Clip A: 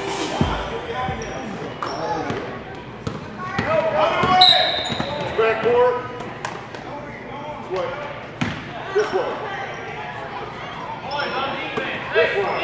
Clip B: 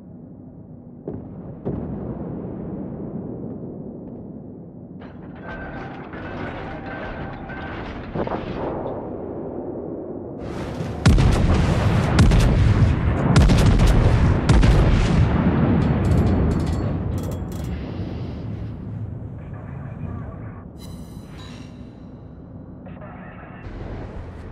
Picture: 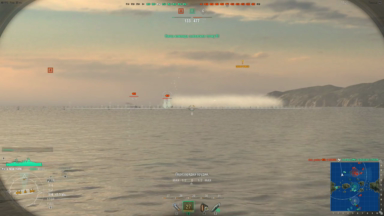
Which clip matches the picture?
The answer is B